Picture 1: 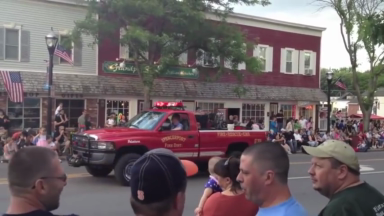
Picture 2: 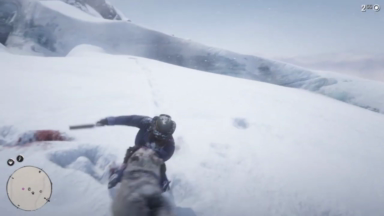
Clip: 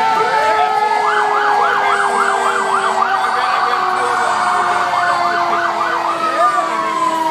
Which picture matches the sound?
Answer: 1